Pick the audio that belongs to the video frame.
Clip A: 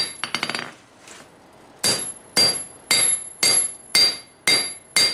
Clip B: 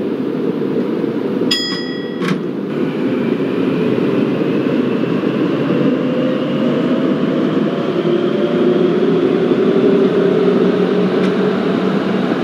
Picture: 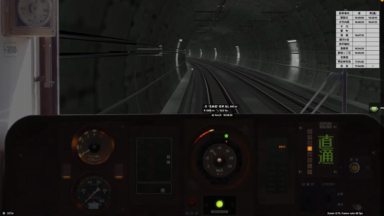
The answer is B